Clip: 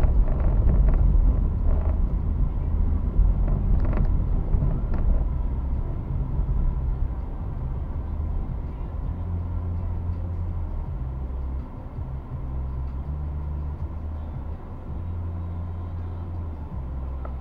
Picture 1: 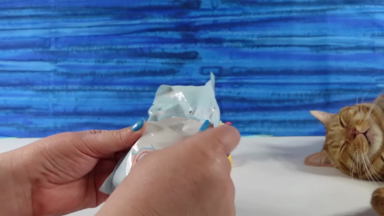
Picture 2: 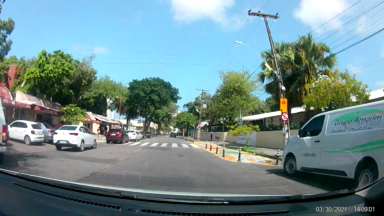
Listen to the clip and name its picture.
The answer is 2